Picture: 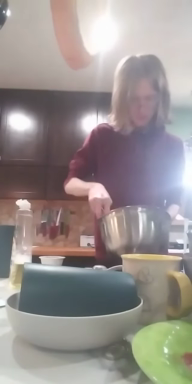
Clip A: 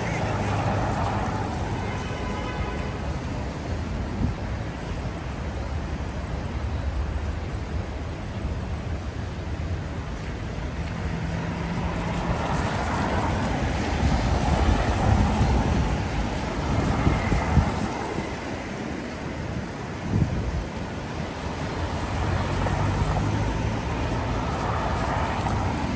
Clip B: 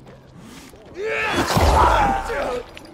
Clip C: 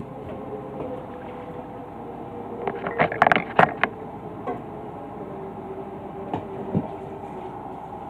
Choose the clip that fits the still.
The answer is C